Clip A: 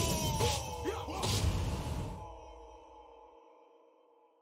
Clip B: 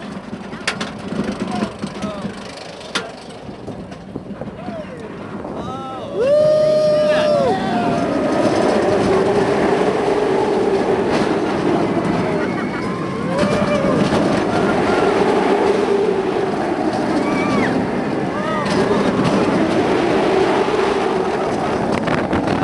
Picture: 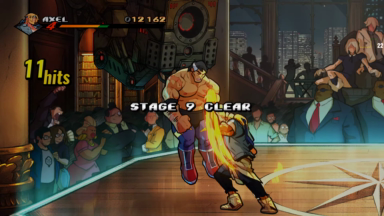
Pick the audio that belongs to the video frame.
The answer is A